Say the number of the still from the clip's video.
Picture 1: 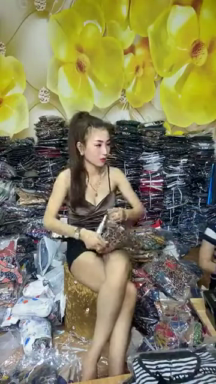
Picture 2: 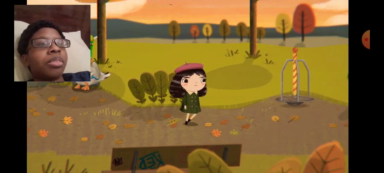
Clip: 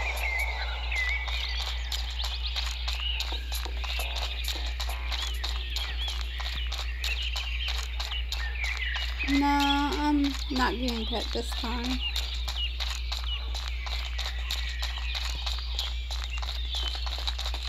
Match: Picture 2